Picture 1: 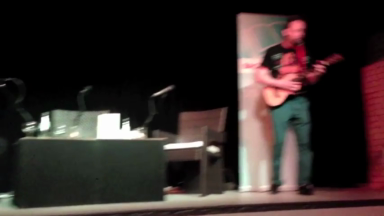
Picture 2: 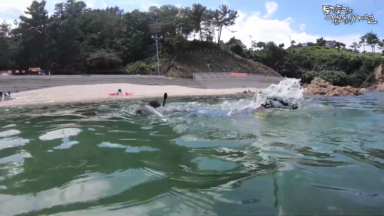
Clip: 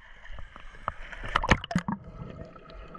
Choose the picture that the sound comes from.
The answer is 2